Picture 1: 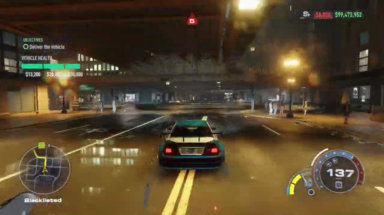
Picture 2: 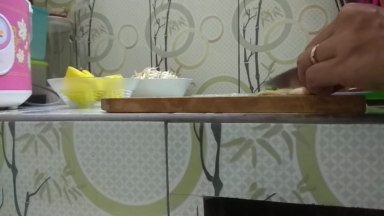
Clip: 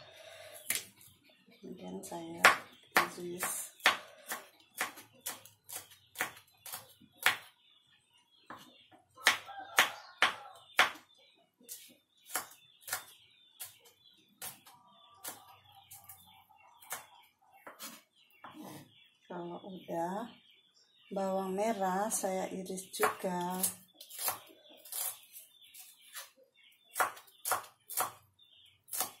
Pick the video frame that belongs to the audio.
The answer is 2